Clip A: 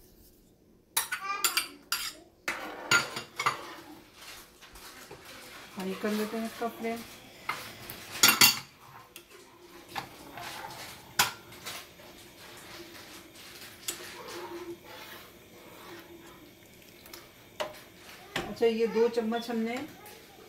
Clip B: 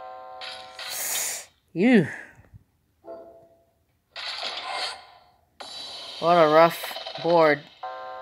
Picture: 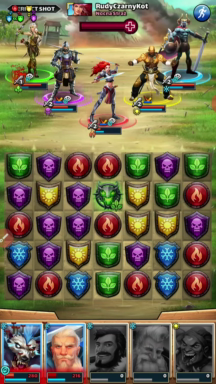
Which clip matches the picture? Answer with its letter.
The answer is B